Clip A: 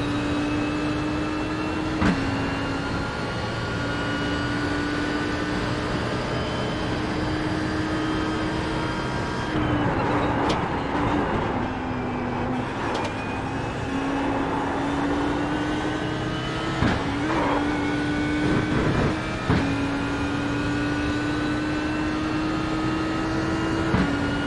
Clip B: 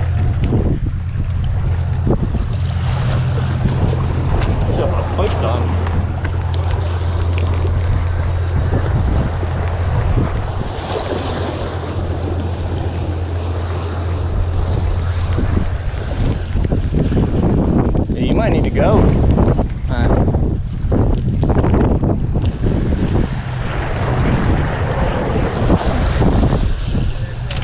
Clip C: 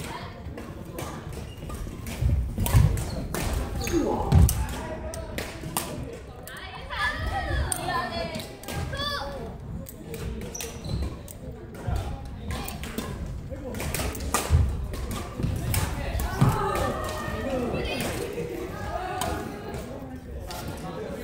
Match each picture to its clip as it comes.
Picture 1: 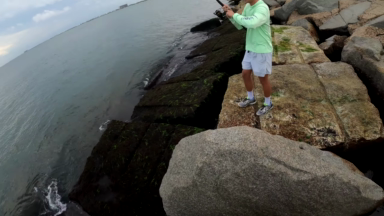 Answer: B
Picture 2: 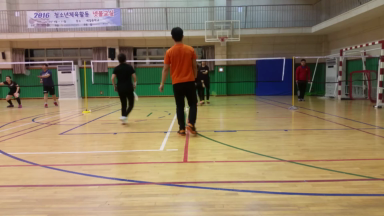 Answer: C